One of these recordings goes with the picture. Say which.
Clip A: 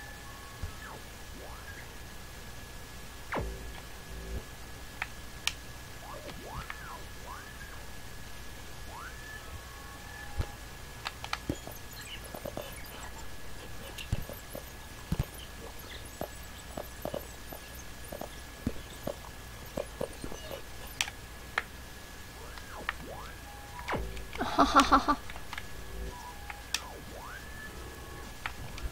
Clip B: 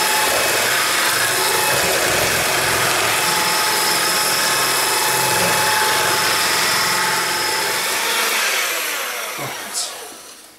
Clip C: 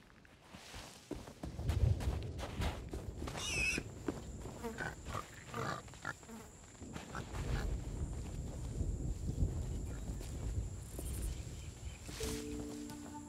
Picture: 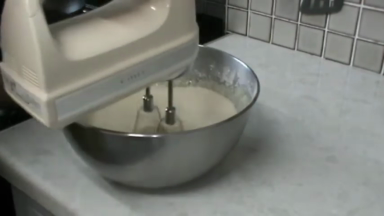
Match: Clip B